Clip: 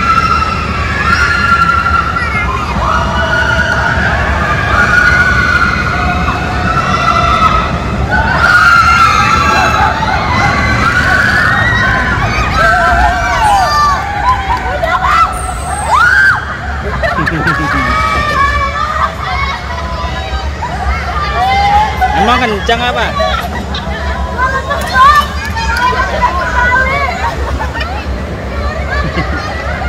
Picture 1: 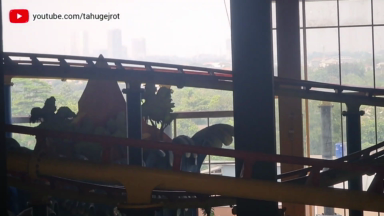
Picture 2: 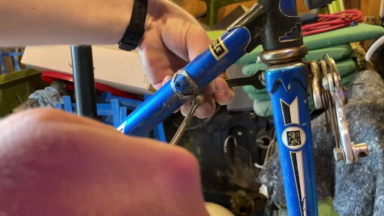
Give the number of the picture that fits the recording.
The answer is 1